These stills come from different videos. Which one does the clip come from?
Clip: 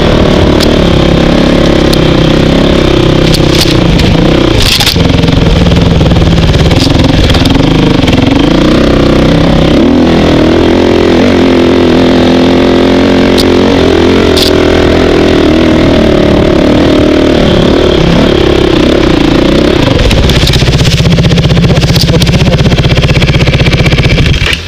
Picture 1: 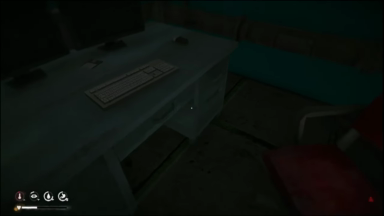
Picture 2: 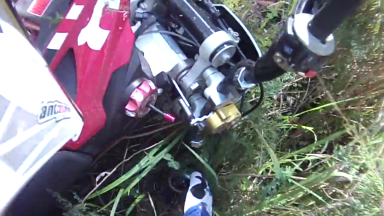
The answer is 2